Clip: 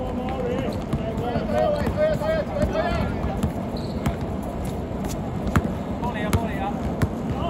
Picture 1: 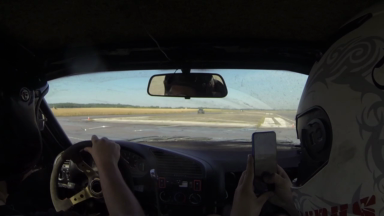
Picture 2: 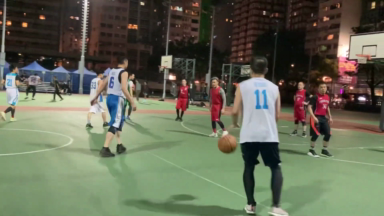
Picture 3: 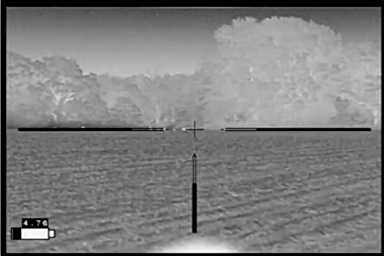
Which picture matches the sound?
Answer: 2